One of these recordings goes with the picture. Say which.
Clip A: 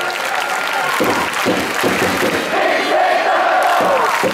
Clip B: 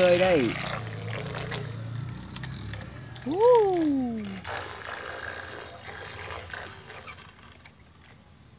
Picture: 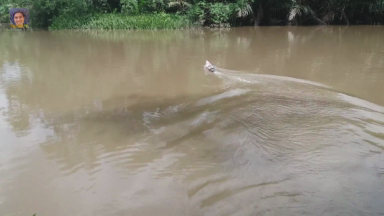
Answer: B